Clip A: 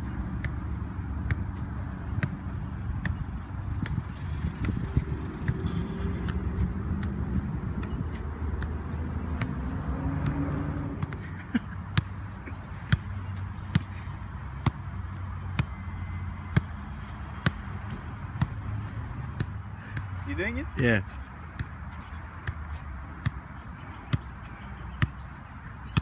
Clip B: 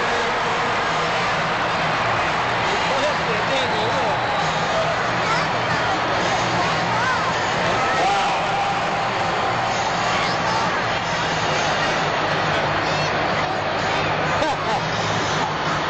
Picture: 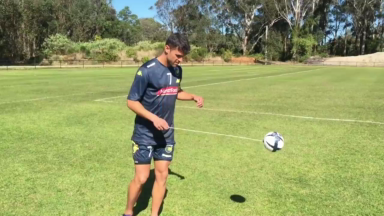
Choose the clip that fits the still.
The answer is A